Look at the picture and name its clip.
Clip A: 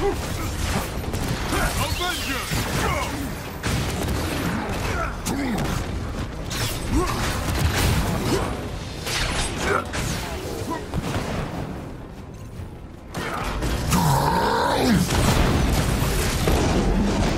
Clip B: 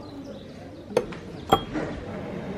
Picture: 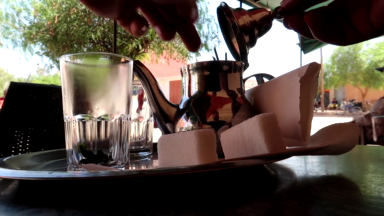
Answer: B